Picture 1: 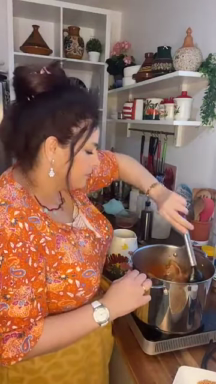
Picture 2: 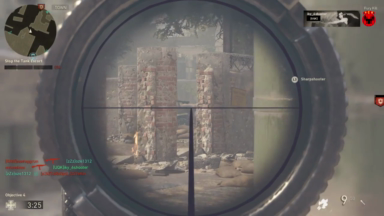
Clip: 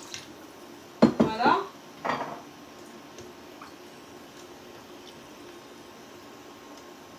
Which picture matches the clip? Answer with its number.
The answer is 1